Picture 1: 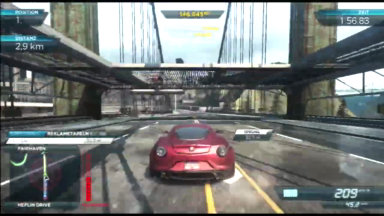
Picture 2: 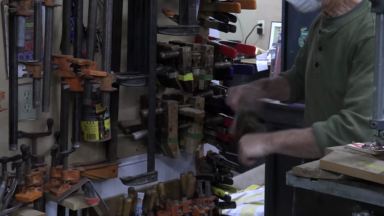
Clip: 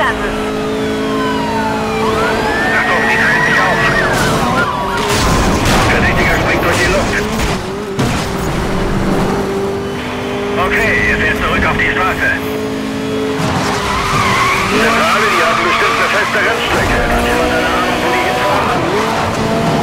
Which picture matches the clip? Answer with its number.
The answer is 1